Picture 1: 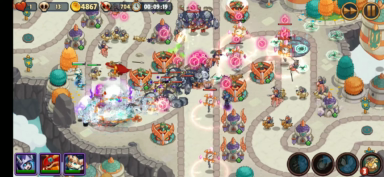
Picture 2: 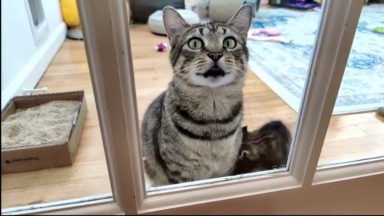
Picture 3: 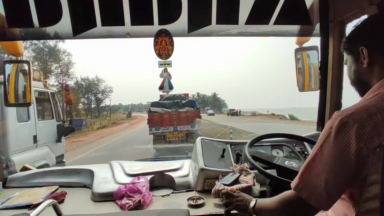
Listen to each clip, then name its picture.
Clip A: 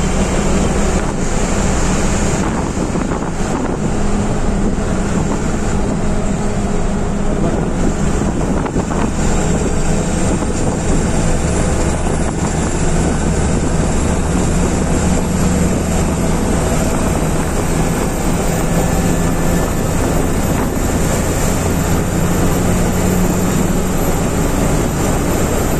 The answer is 3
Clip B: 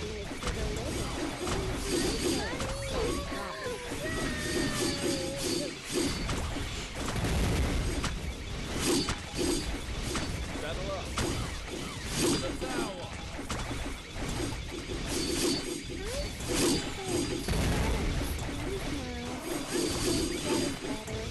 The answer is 1